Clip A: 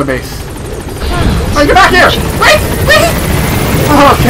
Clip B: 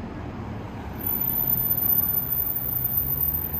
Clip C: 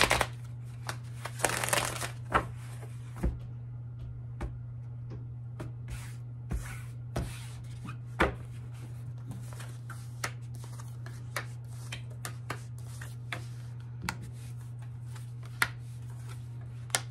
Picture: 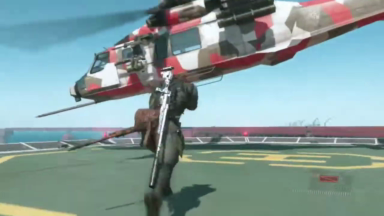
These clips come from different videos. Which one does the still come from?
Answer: A